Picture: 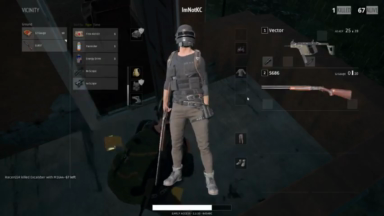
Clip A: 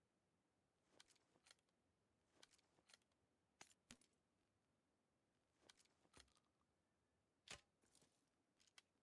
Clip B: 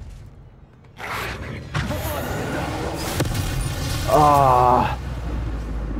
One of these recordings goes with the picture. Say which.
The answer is A